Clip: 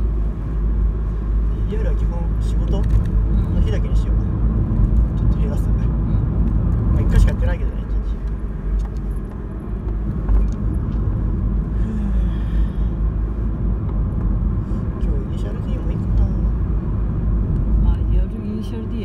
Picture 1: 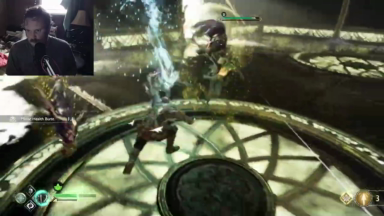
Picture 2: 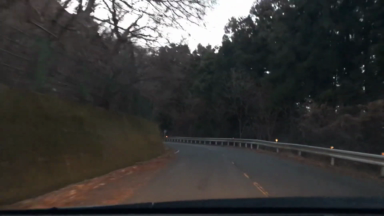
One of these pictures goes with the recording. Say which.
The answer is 2